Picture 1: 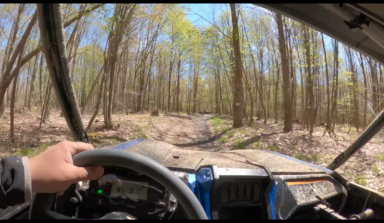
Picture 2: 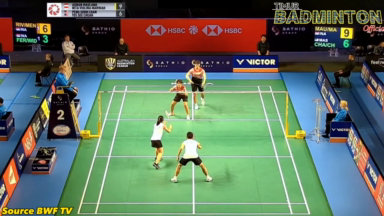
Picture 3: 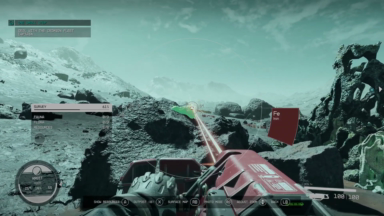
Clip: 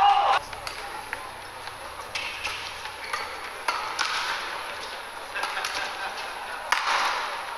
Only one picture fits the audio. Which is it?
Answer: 2